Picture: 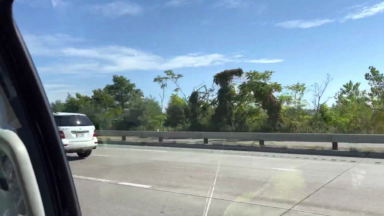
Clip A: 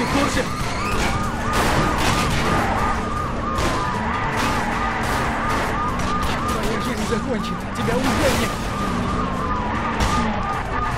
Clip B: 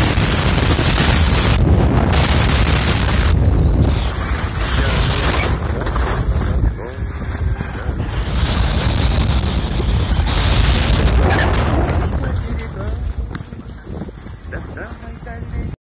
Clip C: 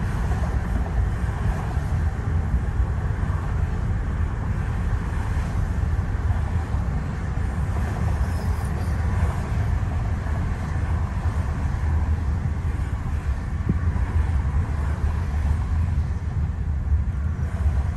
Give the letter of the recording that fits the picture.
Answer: C